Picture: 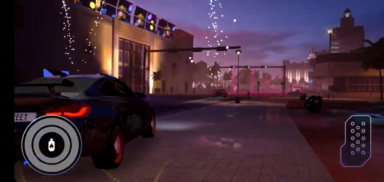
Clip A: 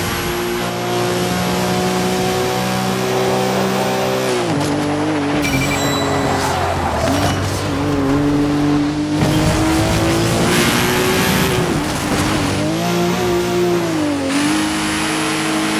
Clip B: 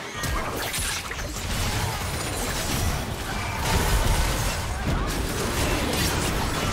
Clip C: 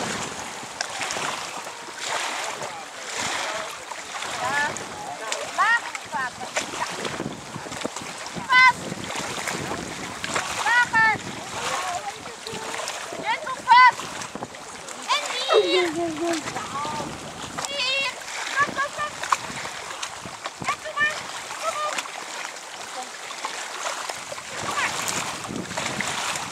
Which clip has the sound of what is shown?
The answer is A